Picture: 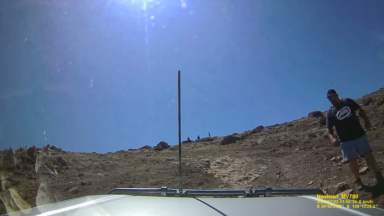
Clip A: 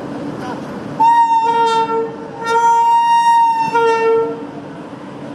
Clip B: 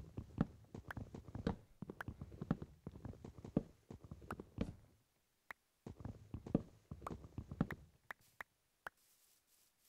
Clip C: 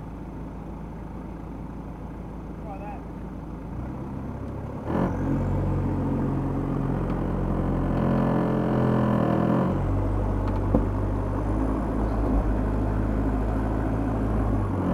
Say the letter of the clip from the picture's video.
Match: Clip C